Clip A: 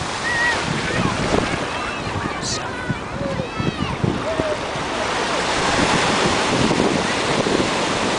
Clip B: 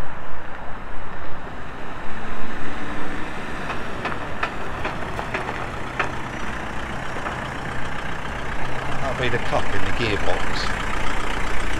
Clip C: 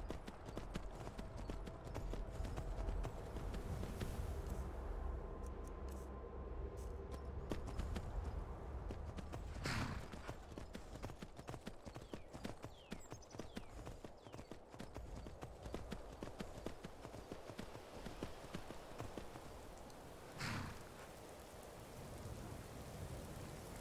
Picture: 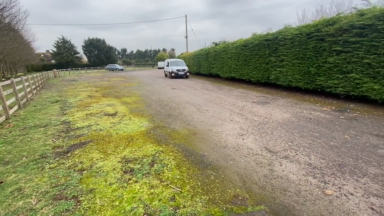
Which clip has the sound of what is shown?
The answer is B